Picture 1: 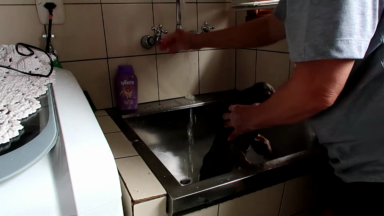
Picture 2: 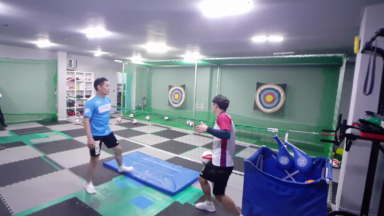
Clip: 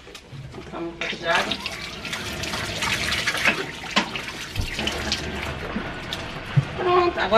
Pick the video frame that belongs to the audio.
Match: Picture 1